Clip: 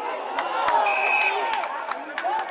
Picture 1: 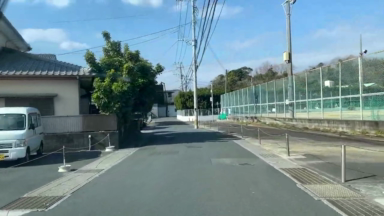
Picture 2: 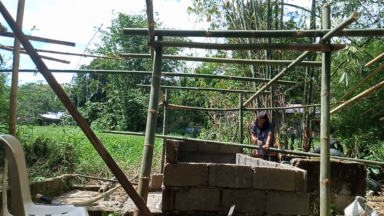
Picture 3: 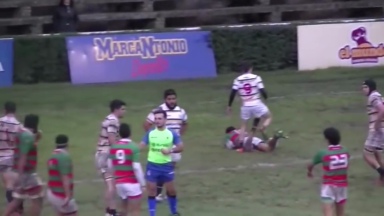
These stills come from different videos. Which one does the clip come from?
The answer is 3